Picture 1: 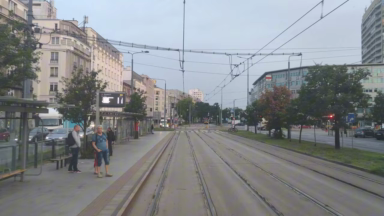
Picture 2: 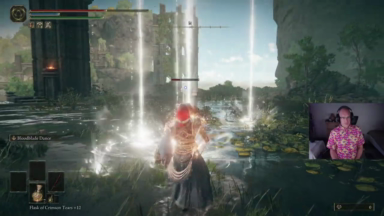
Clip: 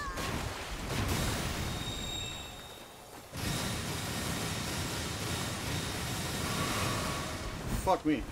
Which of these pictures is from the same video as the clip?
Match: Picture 2